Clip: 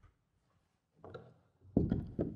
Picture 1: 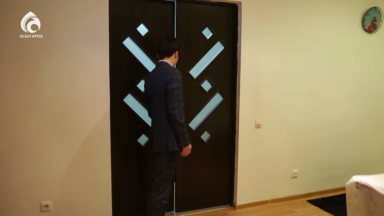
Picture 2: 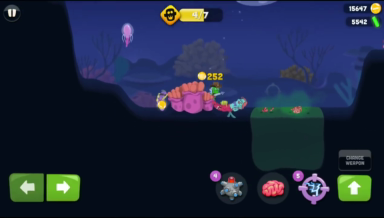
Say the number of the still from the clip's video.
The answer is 1